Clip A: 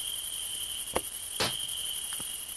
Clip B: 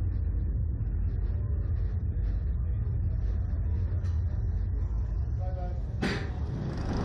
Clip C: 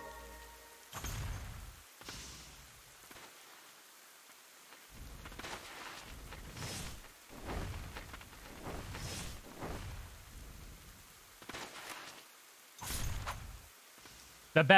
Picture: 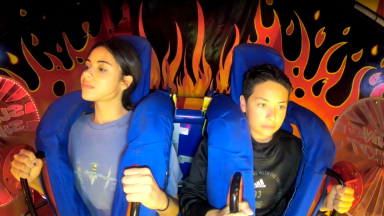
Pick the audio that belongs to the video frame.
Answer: B